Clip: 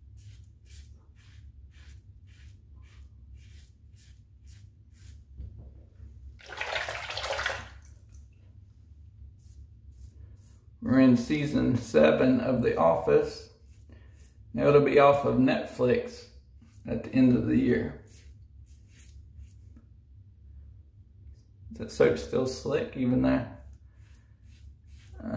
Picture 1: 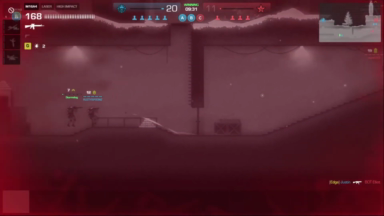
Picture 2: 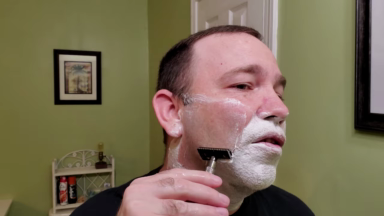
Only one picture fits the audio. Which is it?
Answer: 2